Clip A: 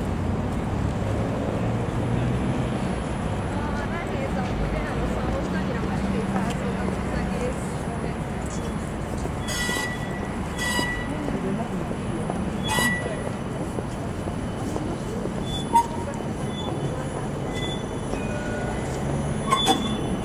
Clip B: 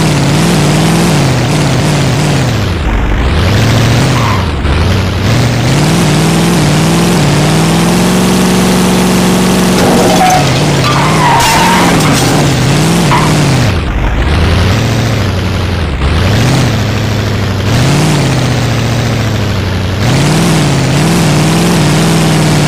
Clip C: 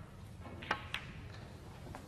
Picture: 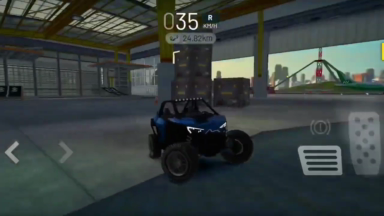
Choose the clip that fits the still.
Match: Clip B